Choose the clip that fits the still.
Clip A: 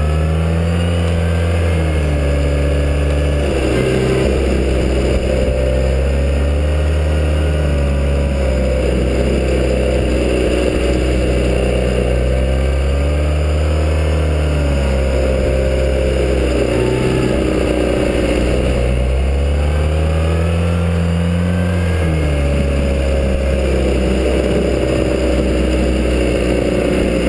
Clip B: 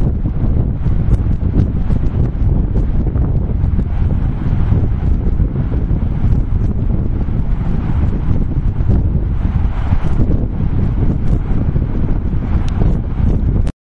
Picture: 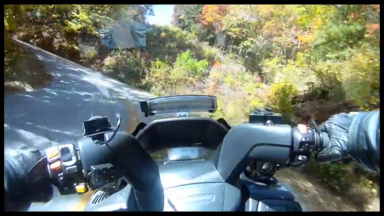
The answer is A